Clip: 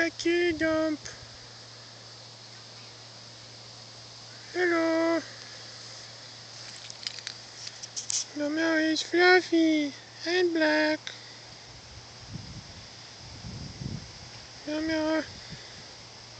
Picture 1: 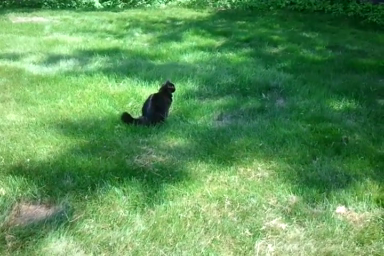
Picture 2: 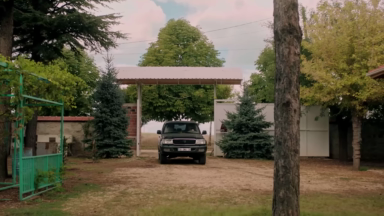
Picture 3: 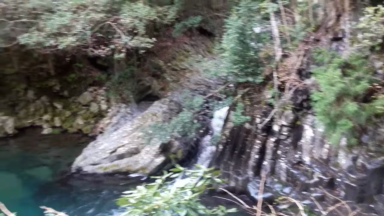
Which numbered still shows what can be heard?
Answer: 1